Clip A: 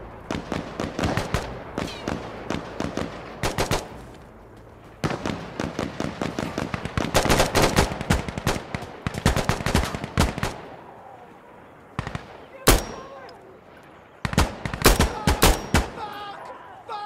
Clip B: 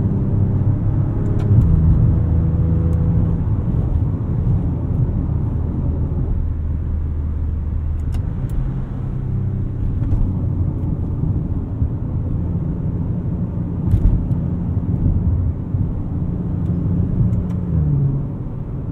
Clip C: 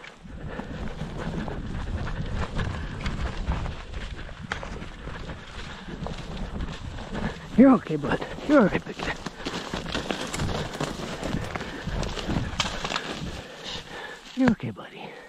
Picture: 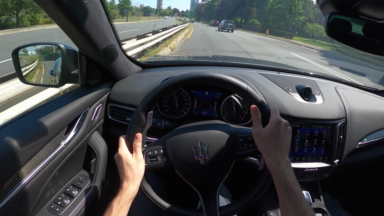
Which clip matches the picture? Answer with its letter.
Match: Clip B